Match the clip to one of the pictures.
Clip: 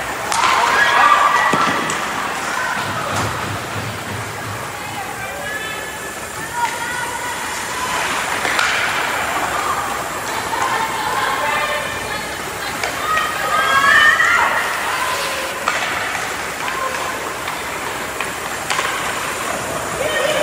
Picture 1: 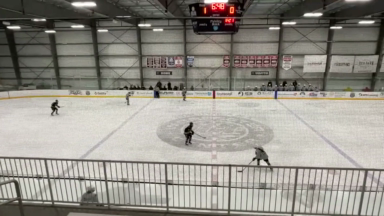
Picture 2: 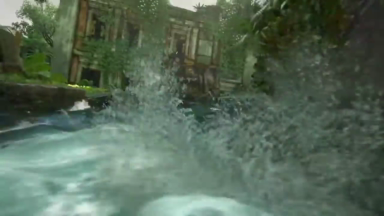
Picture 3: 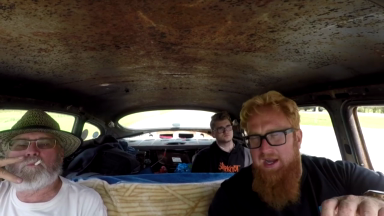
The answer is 1